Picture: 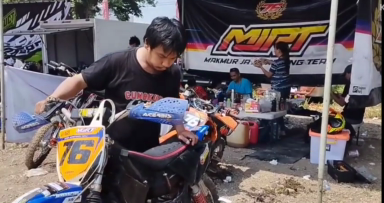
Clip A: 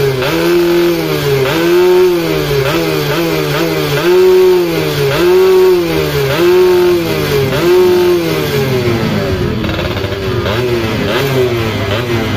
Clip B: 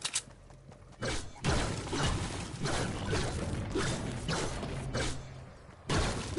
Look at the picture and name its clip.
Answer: A